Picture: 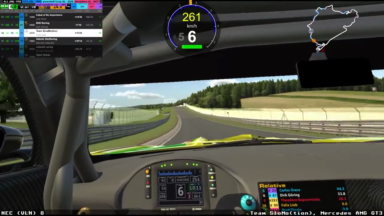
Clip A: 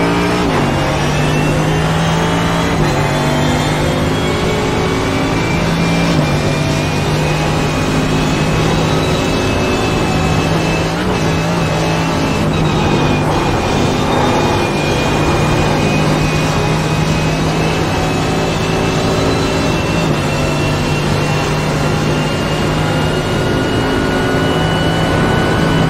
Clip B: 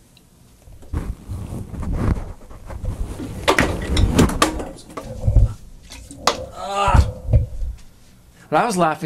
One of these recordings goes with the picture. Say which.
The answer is A